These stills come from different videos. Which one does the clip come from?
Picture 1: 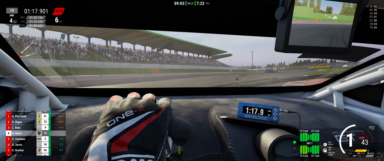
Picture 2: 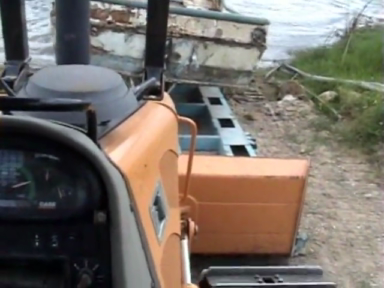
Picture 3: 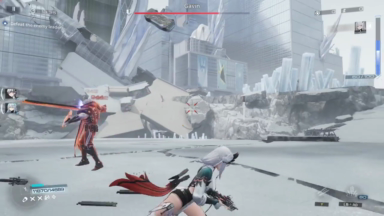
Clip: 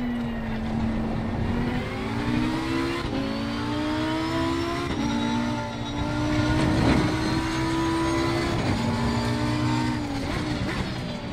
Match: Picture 1